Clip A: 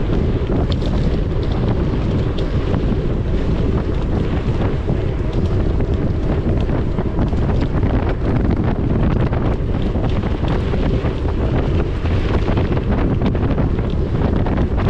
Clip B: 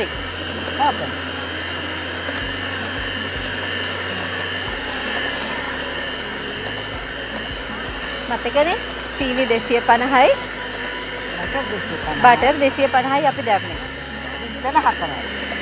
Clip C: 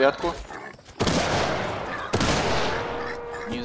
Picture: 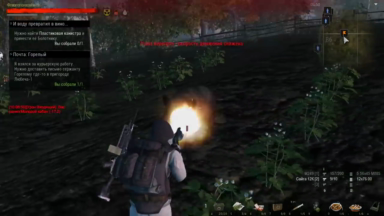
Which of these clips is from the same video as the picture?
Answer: C